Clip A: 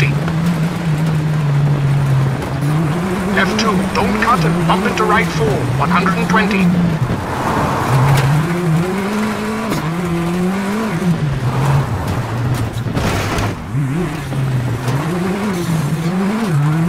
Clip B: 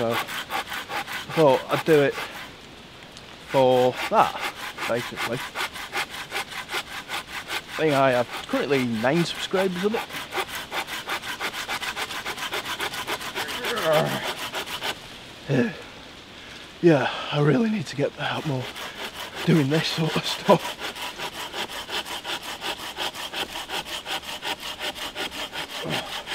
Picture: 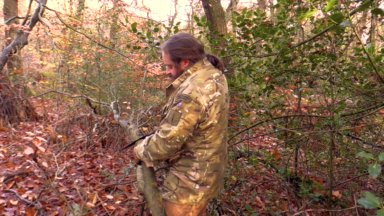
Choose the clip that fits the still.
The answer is B